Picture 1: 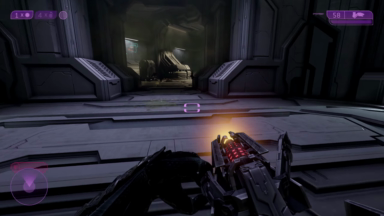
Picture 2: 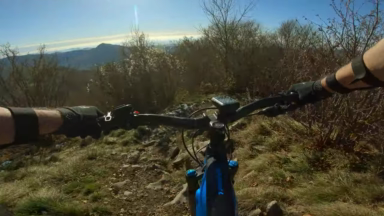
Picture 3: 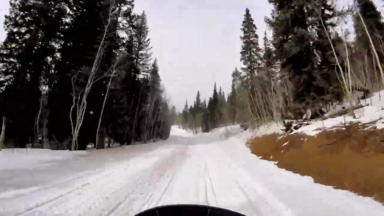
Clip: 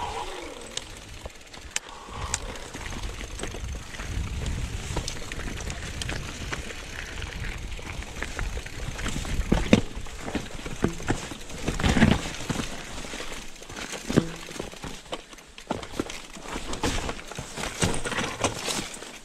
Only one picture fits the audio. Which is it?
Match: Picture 2